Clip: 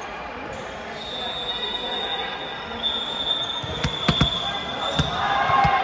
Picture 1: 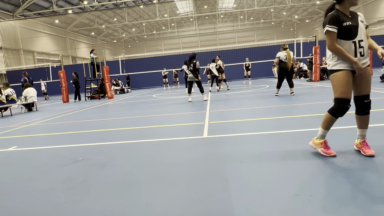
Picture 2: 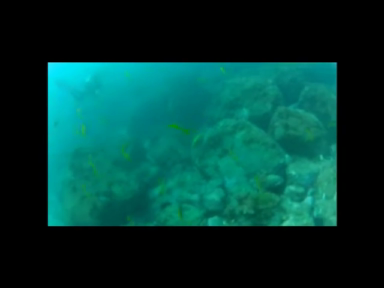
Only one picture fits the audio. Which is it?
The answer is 1